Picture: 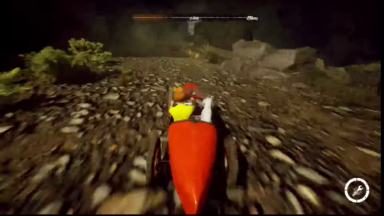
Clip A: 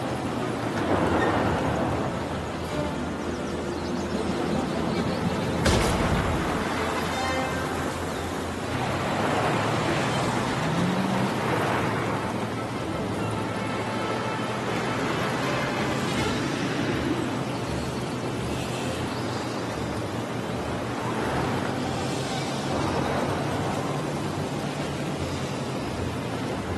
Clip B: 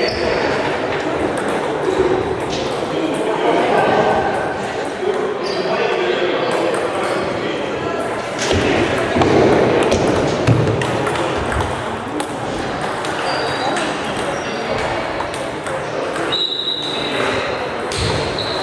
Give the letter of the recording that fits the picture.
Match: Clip A